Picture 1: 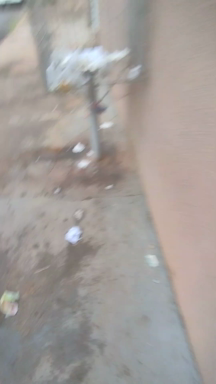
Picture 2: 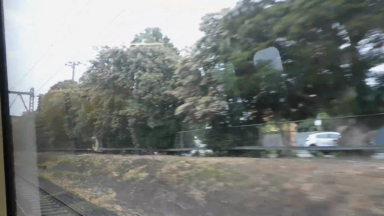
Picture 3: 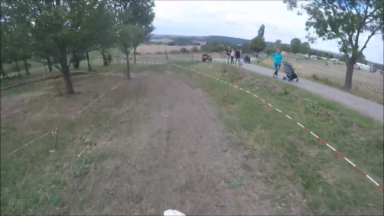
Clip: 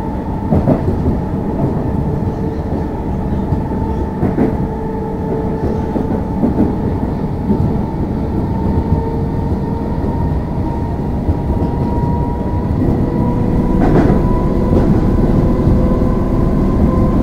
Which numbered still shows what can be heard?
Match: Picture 2